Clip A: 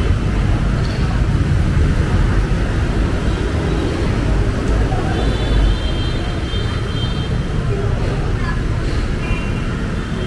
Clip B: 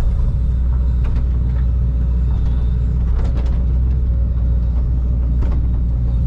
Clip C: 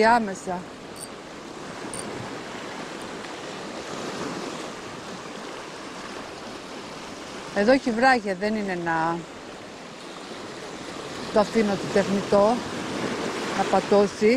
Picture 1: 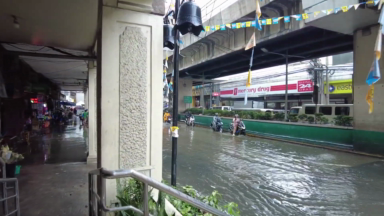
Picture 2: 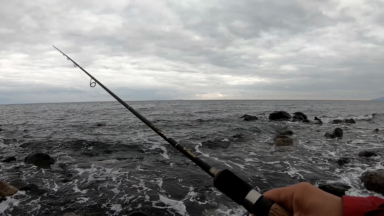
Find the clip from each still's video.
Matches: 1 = A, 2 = C